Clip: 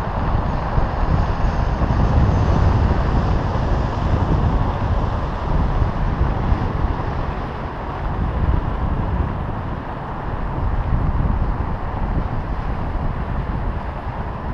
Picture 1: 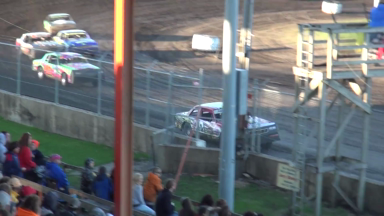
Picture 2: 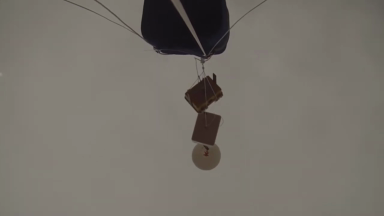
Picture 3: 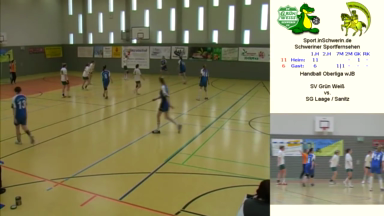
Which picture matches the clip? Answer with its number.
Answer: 2